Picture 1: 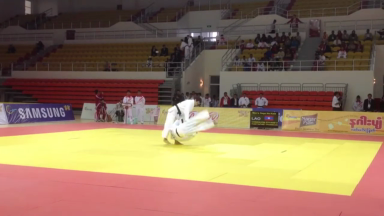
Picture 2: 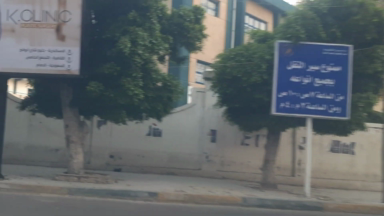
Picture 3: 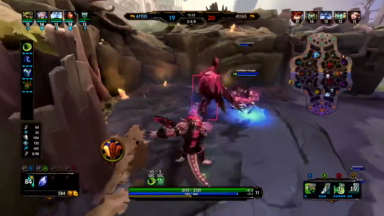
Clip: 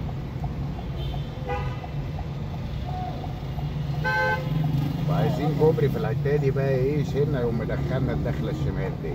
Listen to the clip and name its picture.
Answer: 2